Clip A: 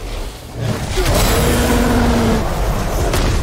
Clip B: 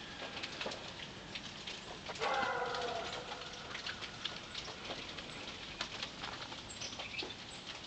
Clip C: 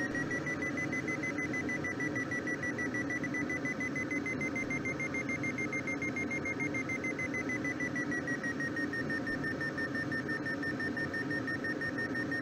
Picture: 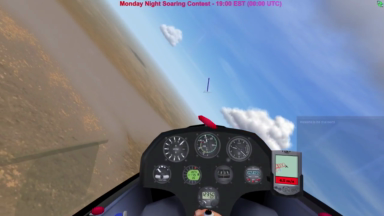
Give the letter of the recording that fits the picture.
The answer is C